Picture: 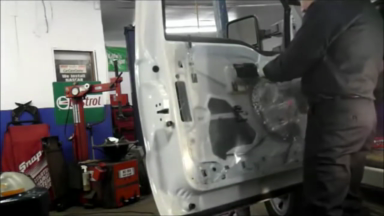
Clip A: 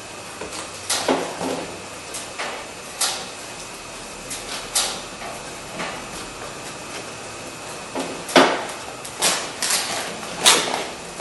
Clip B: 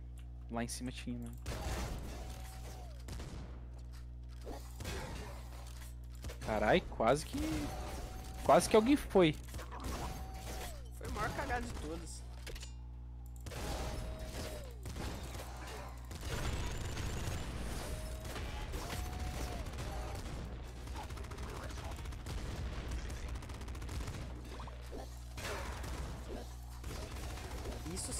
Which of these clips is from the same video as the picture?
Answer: A